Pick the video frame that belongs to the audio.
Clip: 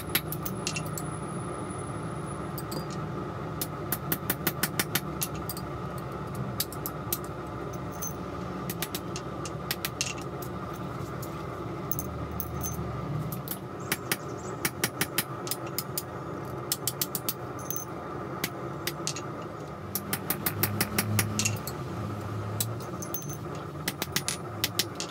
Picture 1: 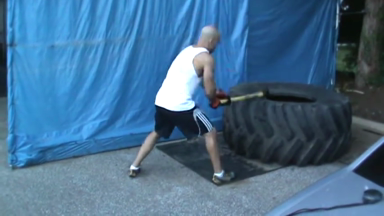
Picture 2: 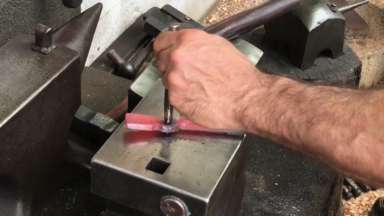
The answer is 2